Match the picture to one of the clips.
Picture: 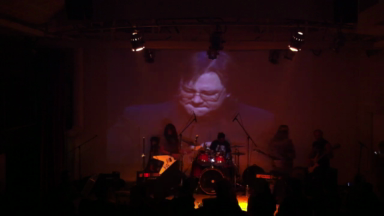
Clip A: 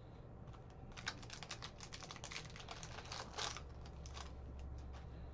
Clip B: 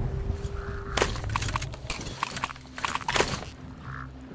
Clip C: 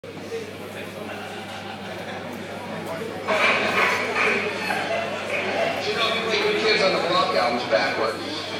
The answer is C